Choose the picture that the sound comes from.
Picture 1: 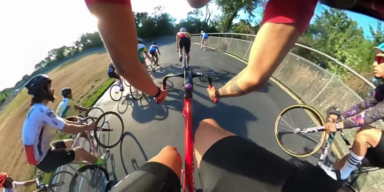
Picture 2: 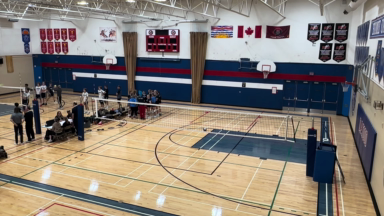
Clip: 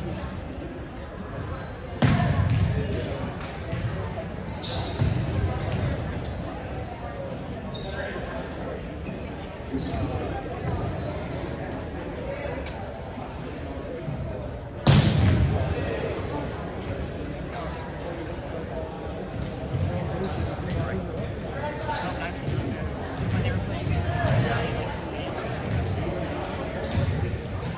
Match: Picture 2